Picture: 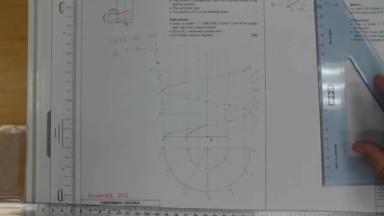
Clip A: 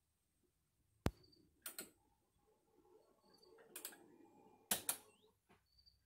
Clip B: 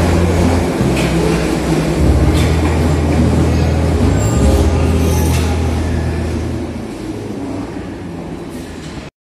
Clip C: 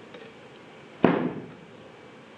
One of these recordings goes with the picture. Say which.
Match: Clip C